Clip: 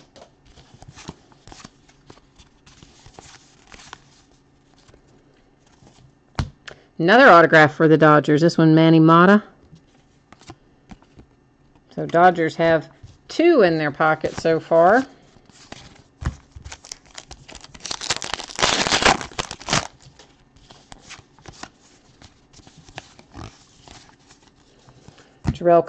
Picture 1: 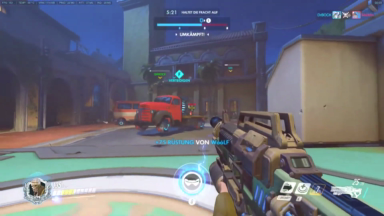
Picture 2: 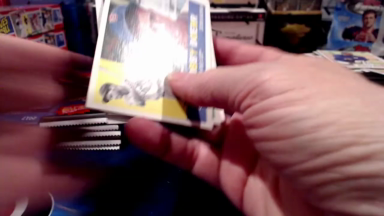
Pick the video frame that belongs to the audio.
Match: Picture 2